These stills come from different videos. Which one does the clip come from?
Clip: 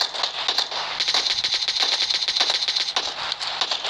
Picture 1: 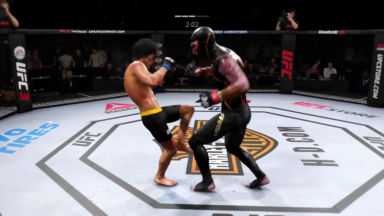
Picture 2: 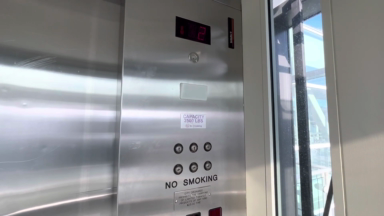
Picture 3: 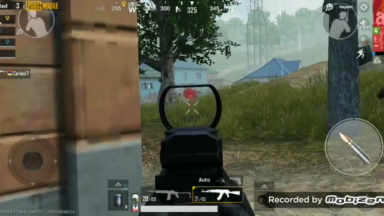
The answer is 3